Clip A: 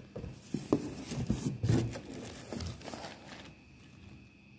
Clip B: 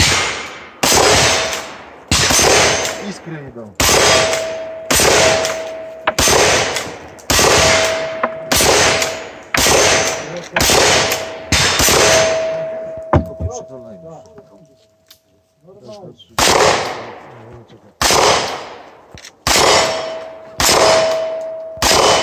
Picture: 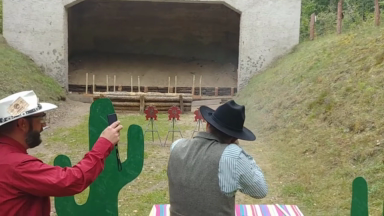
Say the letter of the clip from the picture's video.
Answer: B